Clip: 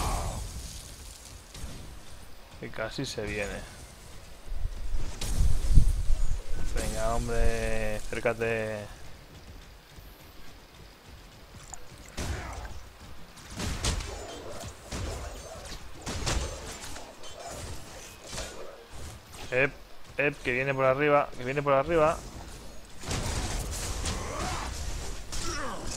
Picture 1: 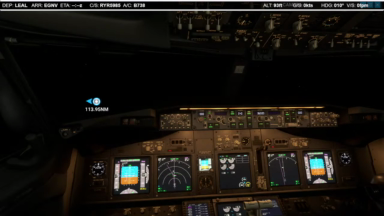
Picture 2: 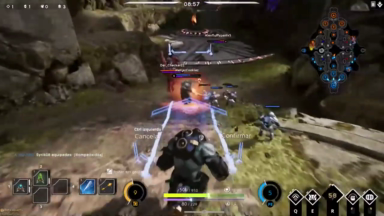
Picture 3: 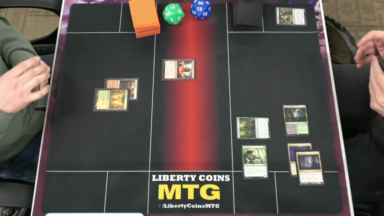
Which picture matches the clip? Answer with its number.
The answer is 2